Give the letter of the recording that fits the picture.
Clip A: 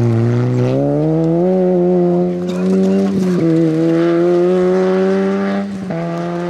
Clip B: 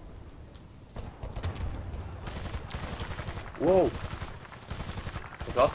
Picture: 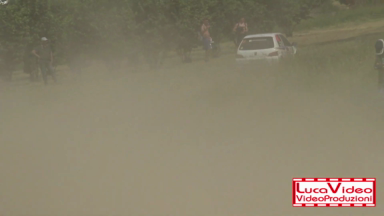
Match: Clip A